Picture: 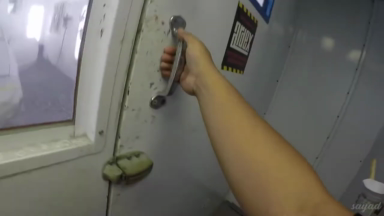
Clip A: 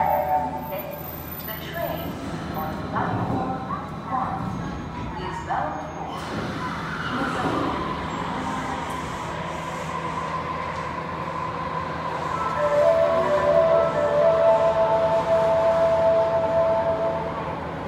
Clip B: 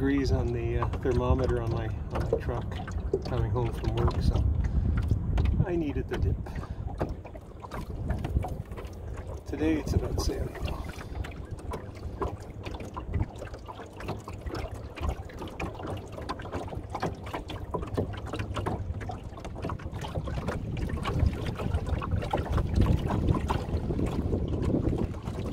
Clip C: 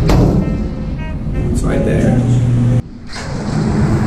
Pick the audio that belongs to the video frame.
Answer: C